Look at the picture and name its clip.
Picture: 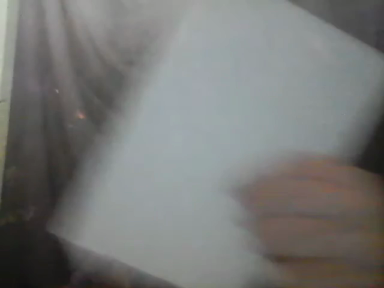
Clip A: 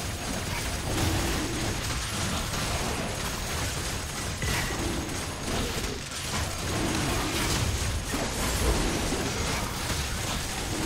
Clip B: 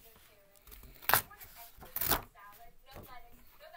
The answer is B